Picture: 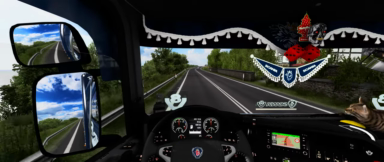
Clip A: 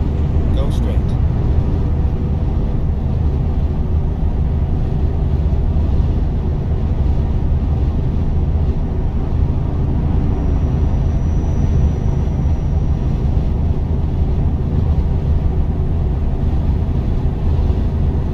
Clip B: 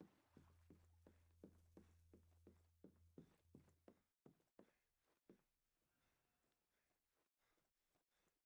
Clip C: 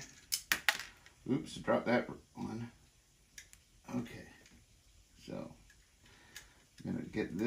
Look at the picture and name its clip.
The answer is A